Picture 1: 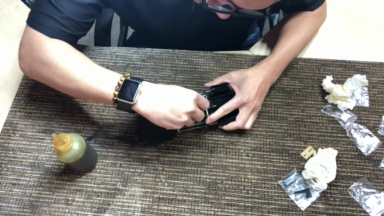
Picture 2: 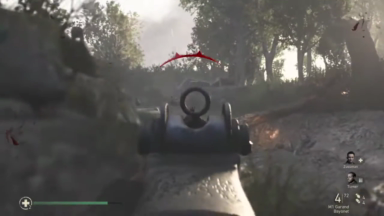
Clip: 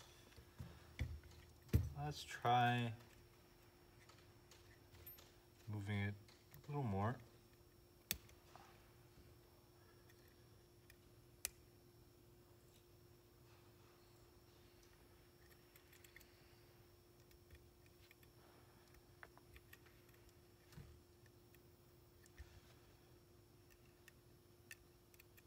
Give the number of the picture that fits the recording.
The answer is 1